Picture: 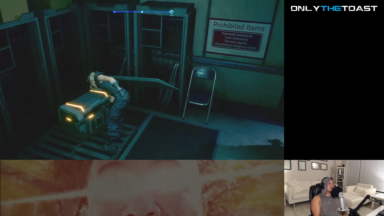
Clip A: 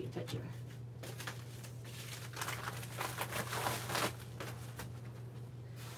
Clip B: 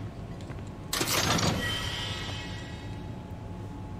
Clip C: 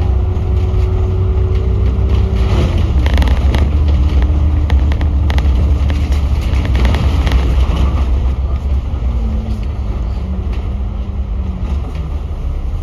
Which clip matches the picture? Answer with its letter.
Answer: B